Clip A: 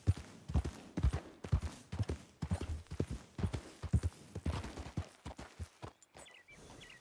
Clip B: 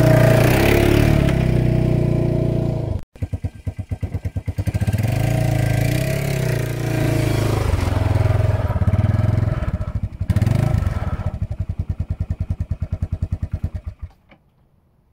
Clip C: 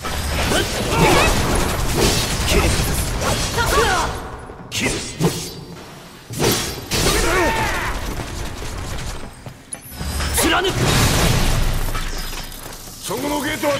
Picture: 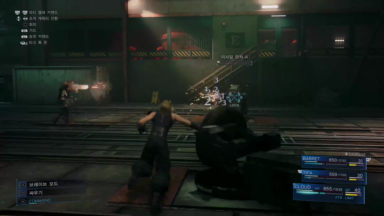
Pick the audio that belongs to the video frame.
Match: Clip C